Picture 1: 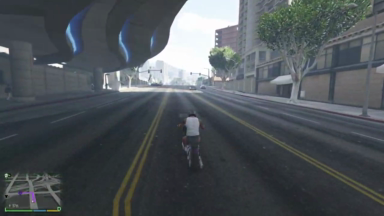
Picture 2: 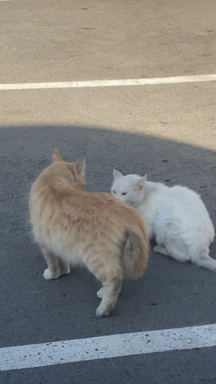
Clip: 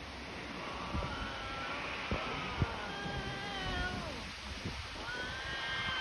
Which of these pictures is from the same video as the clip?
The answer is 2